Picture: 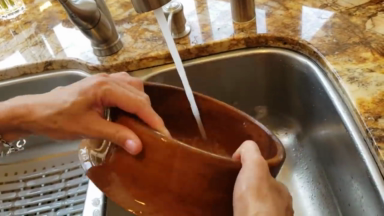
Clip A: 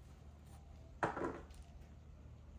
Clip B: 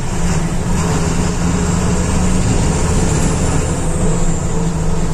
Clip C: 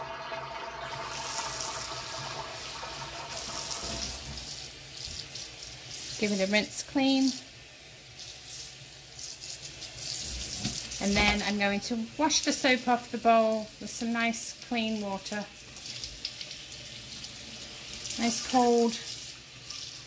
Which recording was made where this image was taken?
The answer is C